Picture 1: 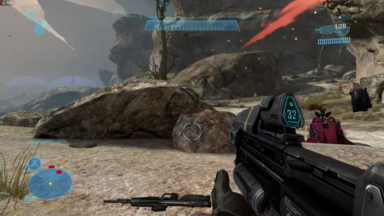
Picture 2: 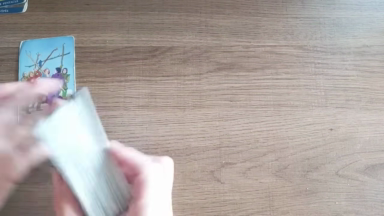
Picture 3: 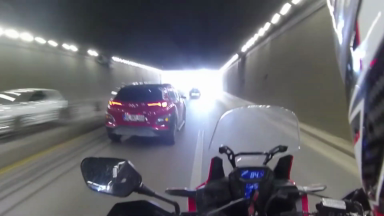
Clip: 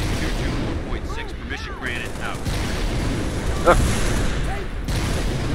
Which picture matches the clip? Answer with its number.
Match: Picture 1